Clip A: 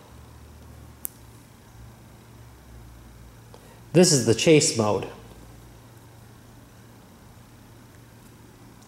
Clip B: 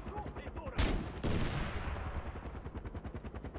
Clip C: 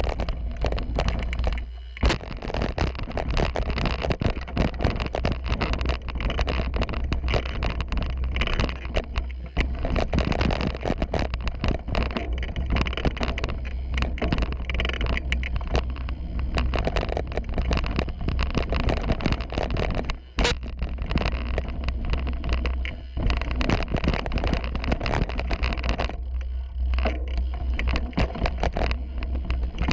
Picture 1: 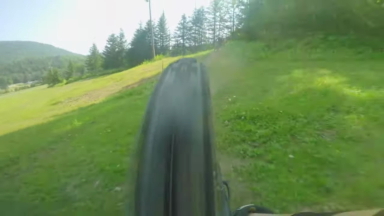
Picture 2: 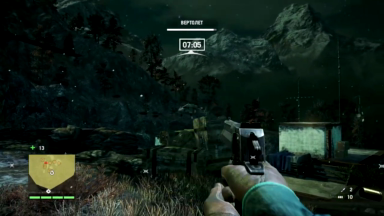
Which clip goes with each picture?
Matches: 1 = C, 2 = B